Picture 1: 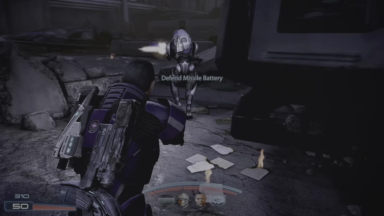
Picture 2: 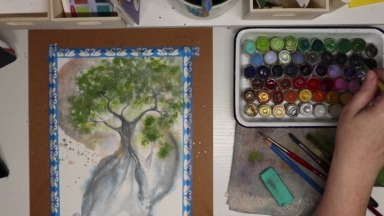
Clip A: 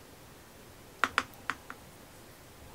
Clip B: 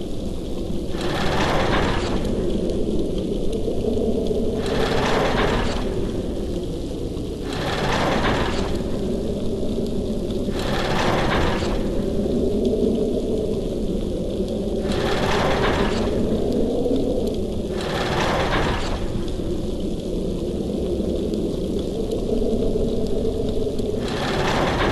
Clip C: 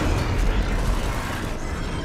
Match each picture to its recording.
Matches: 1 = C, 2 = A